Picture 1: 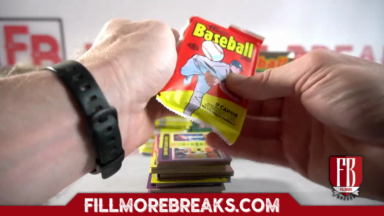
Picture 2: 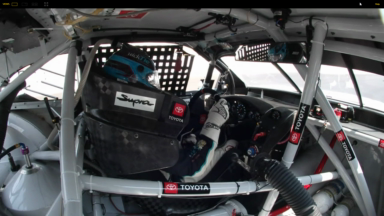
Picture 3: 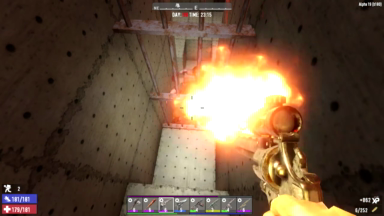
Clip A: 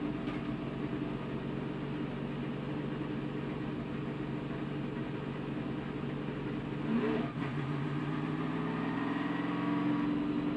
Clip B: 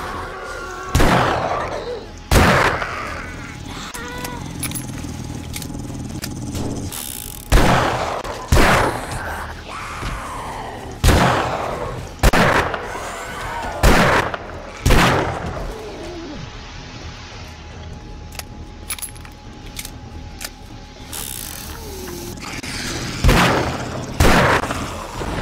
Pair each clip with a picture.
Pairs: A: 2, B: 3